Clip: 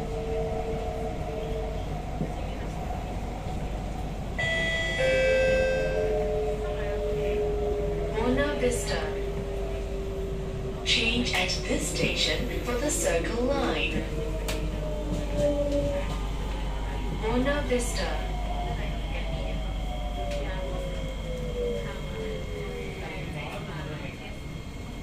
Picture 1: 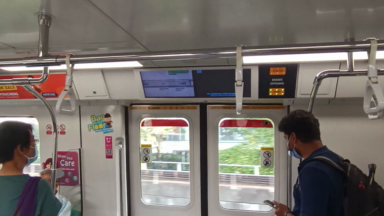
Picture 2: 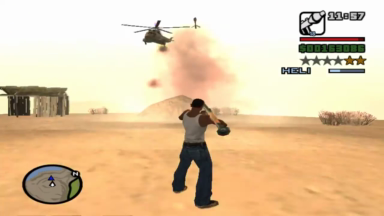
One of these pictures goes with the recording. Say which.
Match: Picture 1